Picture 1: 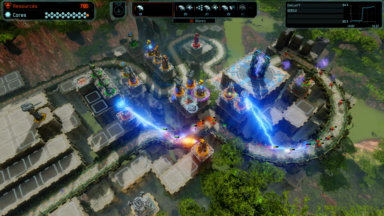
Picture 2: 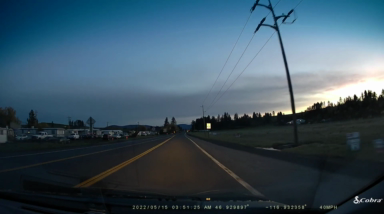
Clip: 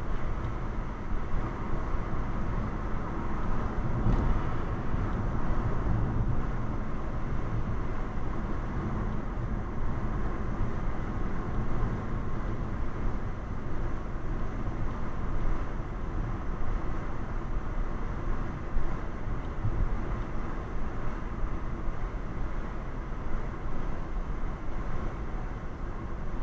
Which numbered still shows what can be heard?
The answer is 2